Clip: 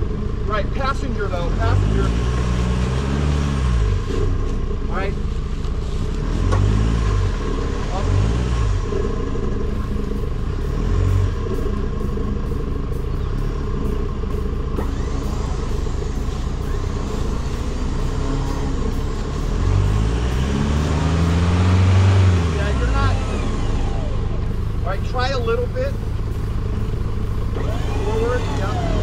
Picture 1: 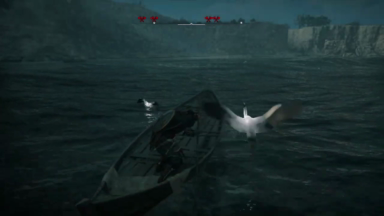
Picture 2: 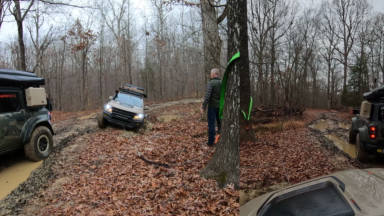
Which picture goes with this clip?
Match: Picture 2